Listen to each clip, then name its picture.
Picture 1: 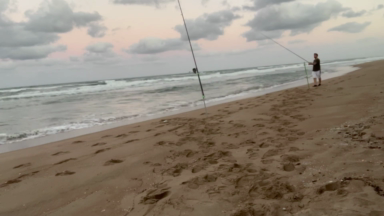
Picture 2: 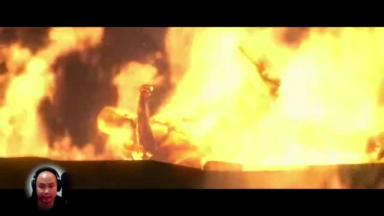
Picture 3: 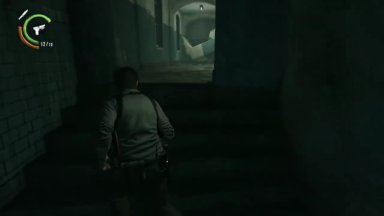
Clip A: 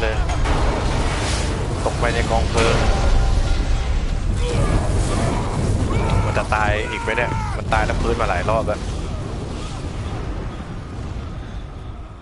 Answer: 2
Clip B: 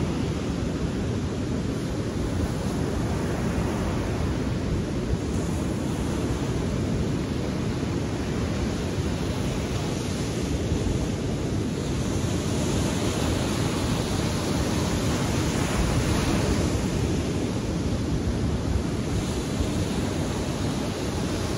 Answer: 1